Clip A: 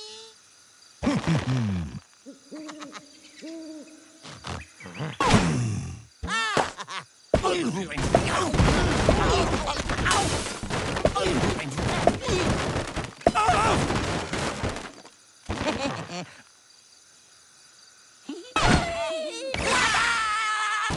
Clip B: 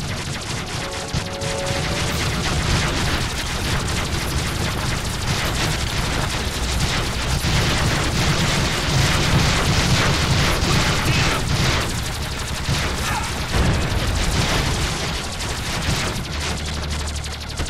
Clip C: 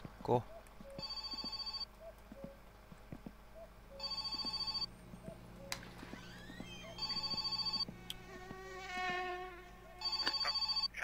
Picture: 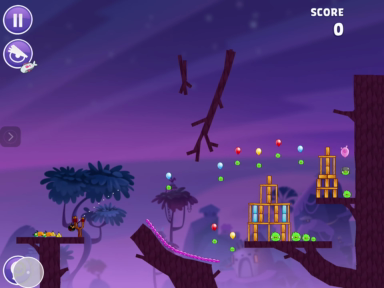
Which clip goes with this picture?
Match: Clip A